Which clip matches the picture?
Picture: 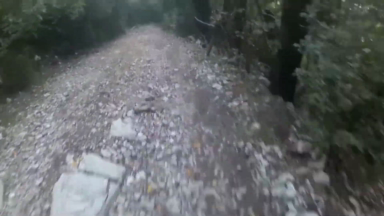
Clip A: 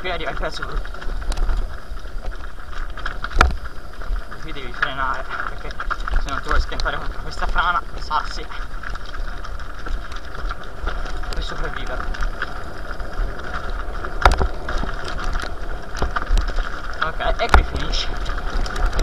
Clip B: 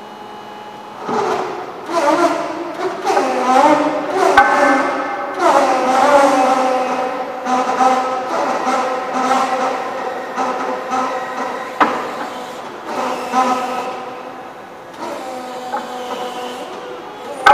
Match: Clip A